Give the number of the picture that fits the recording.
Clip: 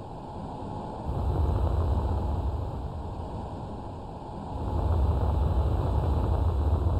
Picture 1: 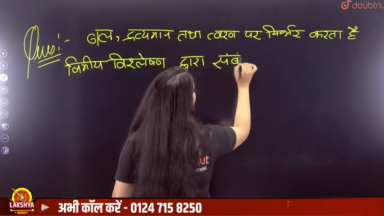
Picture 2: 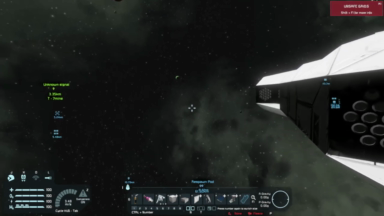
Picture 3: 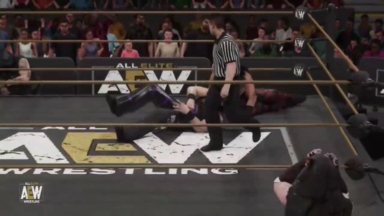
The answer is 2